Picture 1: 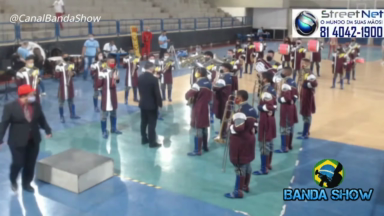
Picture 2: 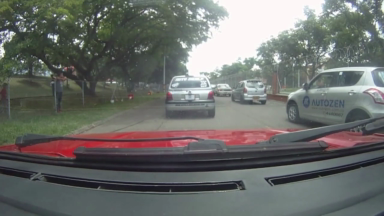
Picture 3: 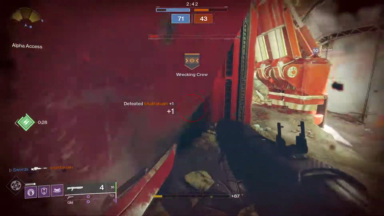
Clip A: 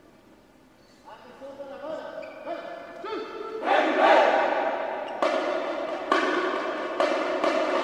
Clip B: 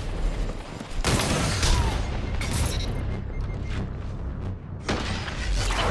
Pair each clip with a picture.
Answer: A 1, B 3